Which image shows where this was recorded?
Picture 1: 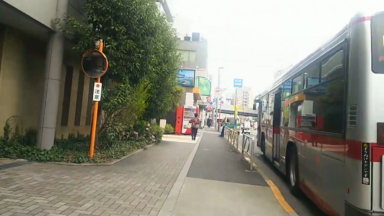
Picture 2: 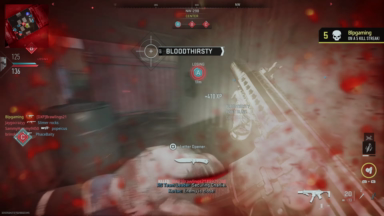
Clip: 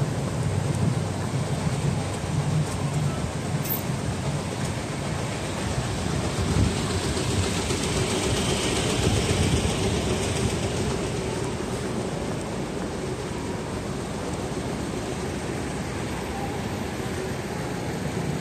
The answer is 1